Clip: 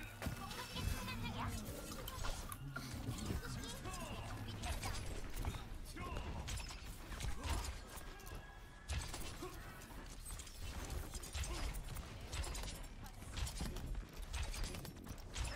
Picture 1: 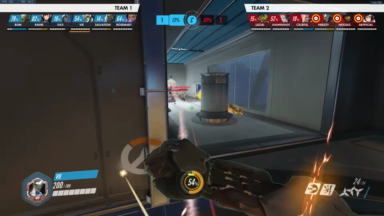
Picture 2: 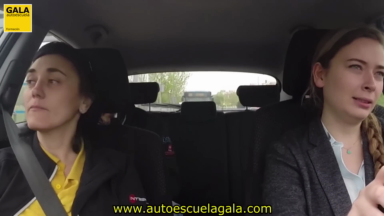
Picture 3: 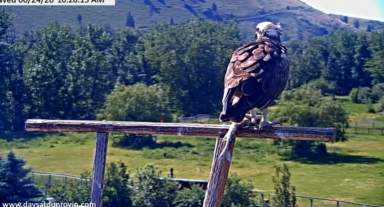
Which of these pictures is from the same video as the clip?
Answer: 1